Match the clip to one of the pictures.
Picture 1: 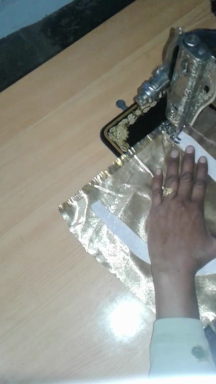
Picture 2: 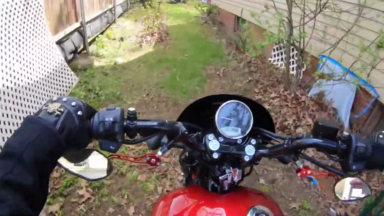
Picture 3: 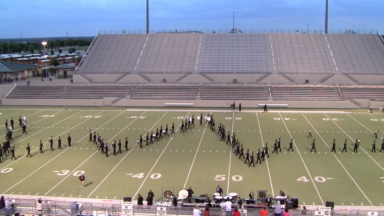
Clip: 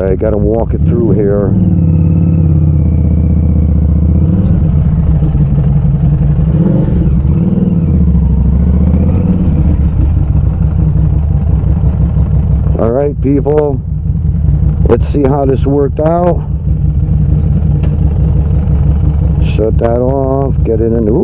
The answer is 2